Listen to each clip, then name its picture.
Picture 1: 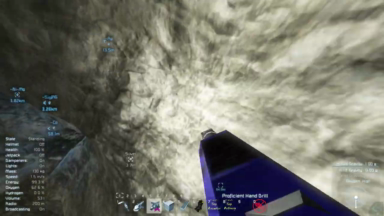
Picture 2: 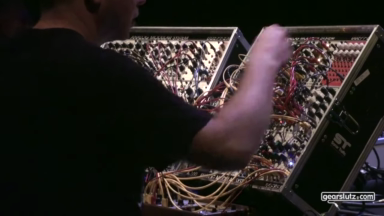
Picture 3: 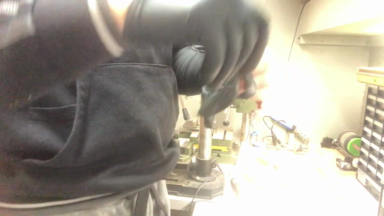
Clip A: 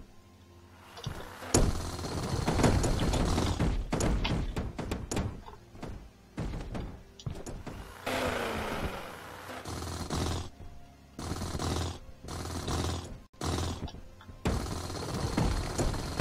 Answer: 1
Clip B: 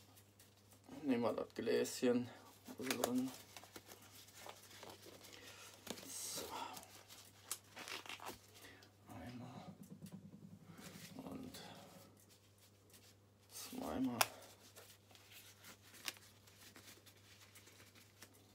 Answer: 3